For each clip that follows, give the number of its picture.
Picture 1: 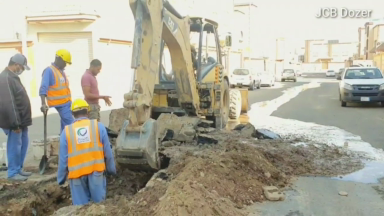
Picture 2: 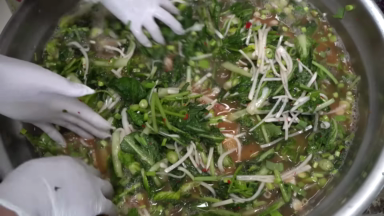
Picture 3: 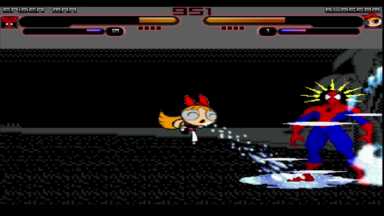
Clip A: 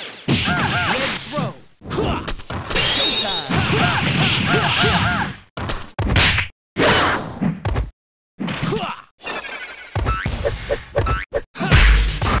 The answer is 3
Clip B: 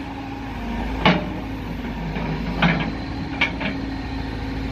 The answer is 1